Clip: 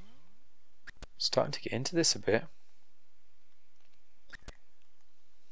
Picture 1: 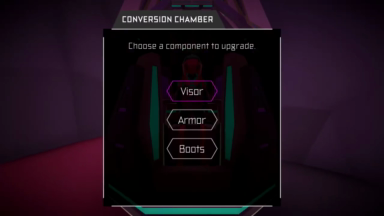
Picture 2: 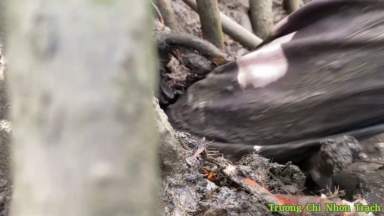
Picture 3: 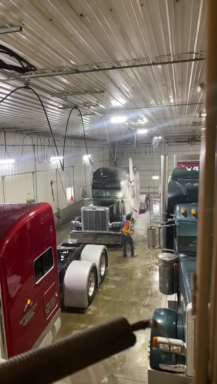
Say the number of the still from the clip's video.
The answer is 1